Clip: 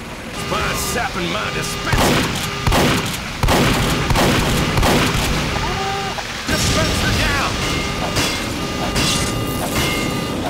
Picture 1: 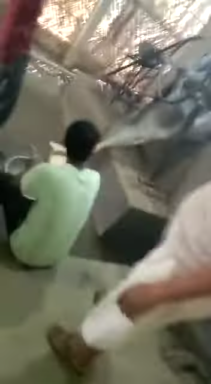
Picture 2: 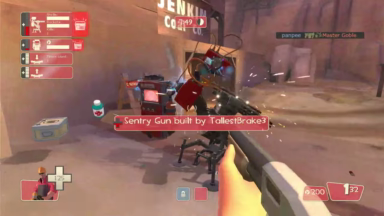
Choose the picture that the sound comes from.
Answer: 2